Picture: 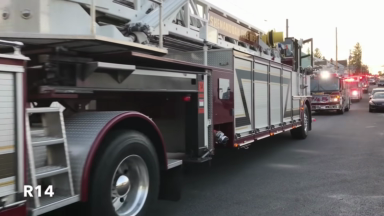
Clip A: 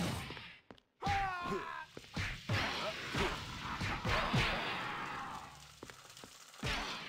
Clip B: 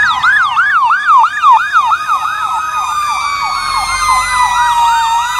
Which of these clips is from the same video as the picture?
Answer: B